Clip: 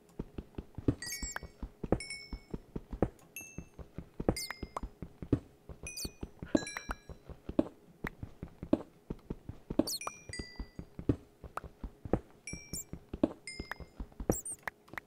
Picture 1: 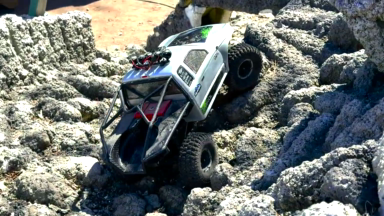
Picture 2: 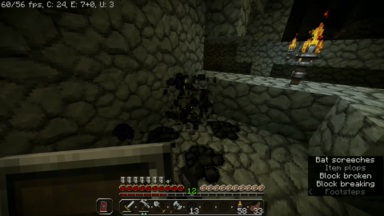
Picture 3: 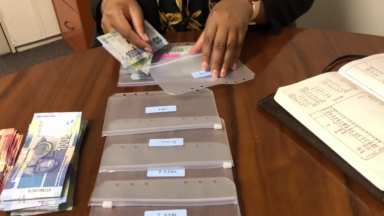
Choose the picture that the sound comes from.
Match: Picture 2